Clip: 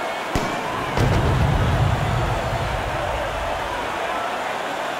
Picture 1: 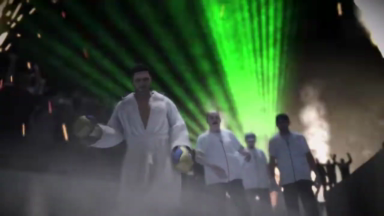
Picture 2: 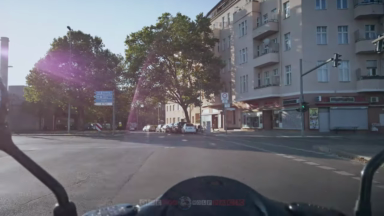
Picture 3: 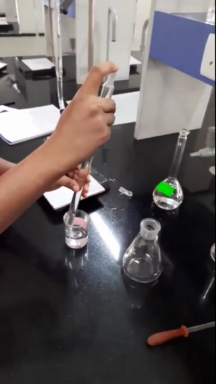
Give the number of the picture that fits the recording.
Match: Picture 1